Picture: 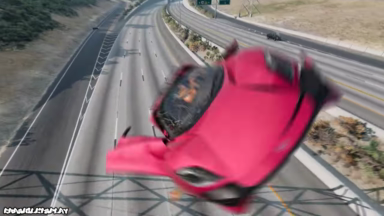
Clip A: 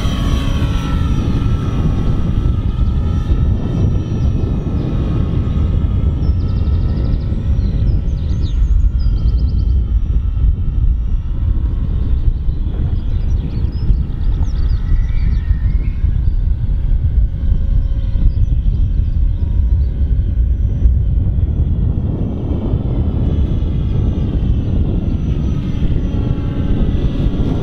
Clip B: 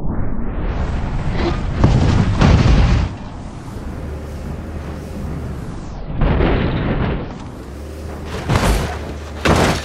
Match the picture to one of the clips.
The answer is B